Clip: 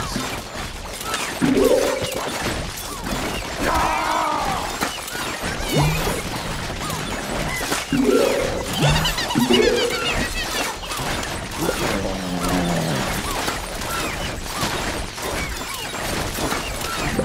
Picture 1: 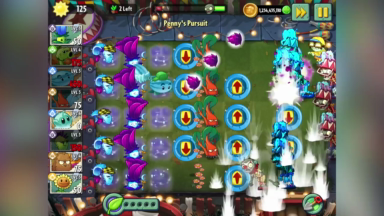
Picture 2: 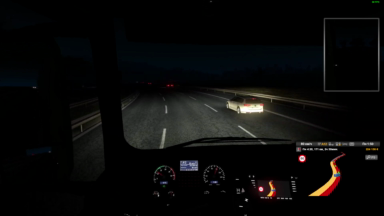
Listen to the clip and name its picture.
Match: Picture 1